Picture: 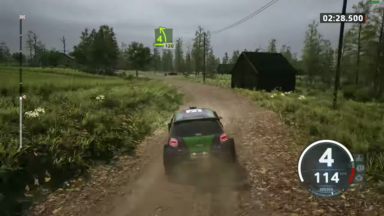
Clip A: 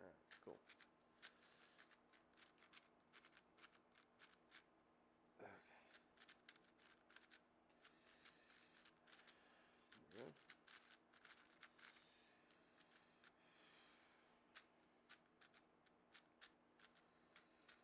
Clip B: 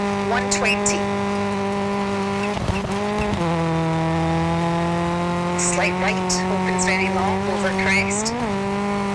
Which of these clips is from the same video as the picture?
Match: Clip B